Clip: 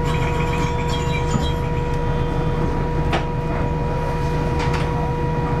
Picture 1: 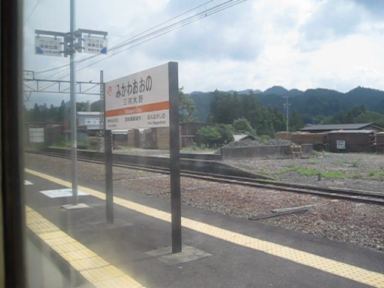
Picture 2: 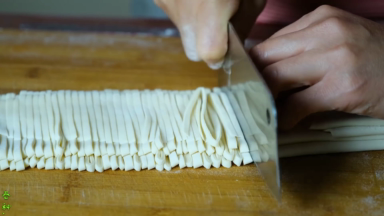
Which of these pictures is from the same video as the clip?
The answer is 1